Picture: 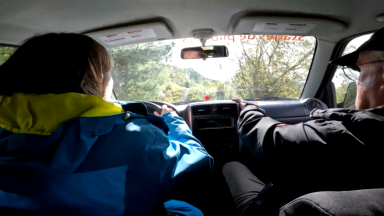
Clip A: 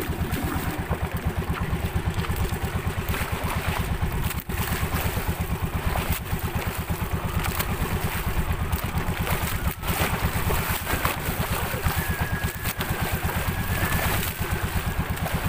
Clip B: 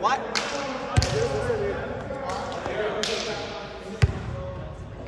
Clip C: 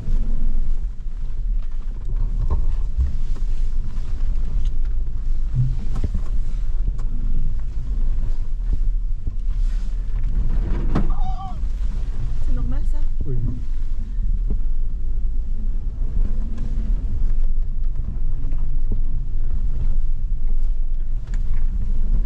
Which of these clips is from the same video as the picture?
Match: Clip C